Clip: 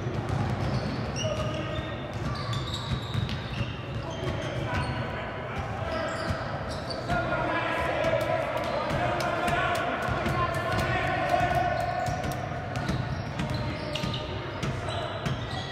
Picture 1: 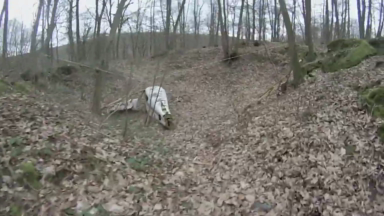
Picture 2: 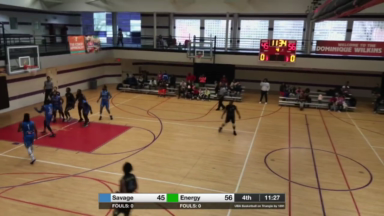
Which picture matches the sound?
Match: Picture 2